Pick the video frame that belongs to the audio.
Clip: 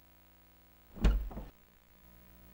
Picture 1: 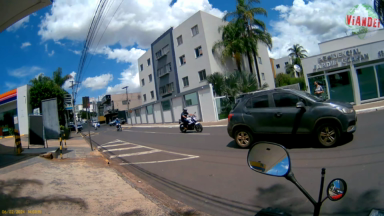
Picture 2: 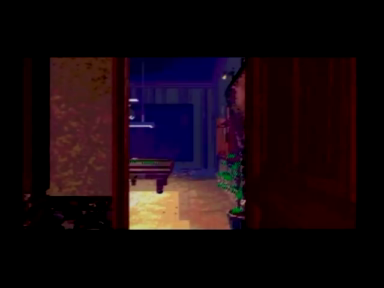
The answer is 2